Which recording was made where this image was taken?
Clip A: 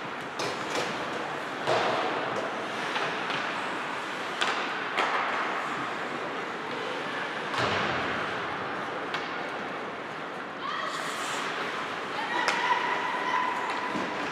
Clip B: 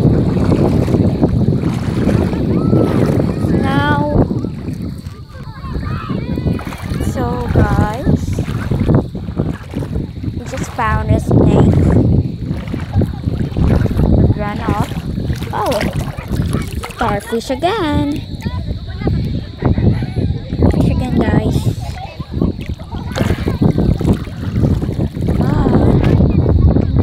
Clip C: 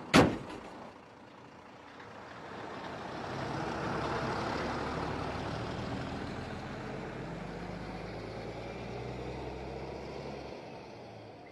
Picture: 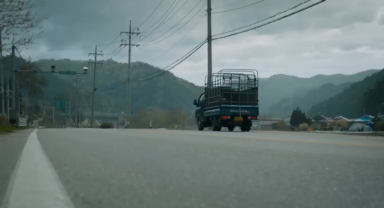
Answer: C